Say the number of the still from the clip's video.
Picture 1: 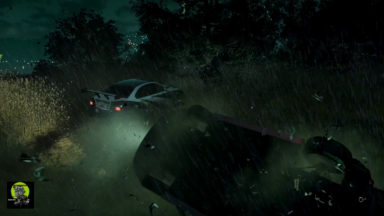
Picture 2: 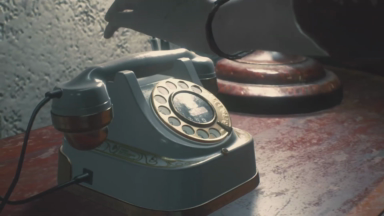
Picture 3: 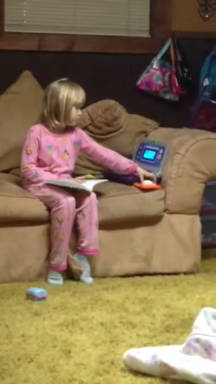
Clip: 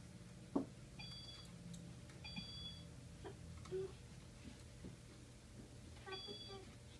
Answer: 3